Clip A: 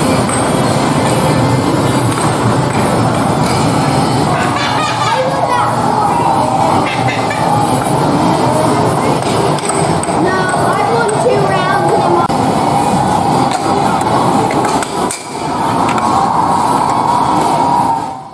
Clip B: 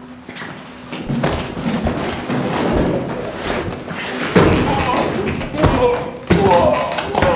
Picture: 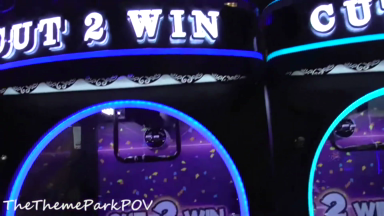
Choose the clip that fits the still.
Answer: A